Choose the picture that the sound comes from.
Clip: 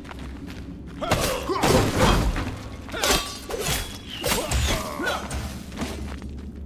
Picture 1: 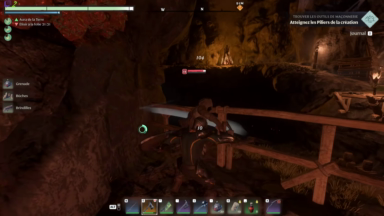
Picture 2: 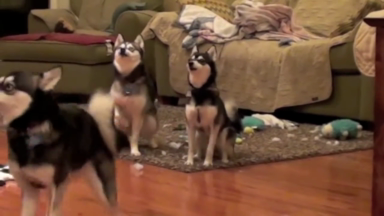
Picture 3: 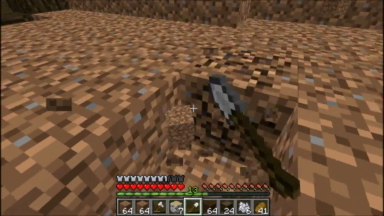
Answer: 1